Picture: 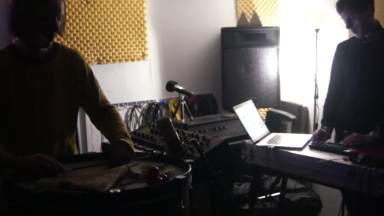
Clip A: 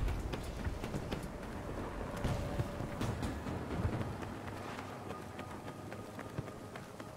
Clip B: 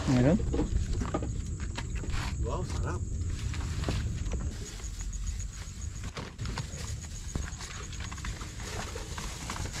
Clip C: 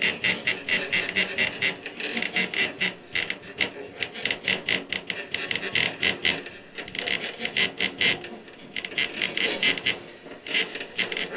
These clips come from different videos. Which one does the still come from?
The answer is C